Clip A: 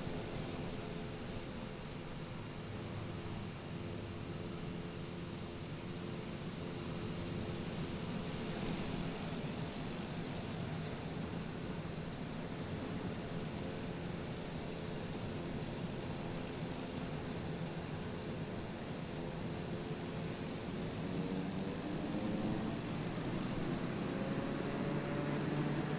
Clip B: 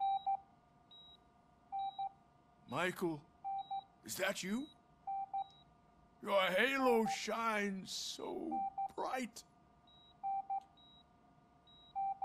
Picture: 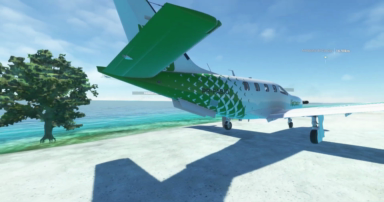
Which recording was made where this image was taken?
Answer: A